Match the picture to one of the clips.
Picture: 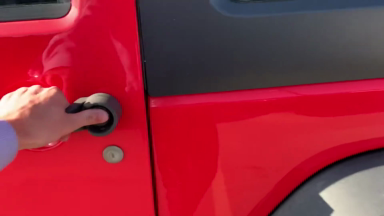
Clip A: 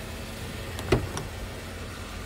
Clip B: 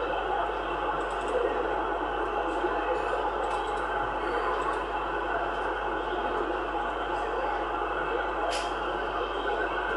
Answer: A